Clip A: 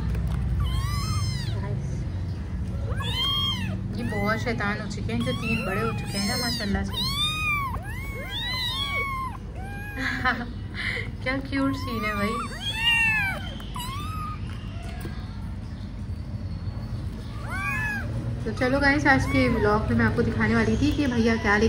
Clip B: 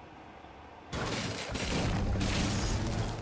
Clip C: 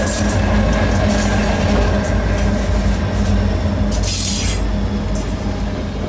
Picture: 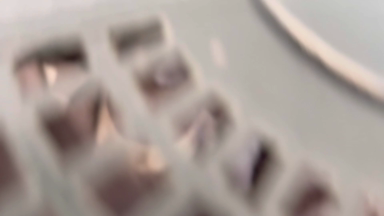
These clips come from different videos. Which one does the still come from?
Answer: A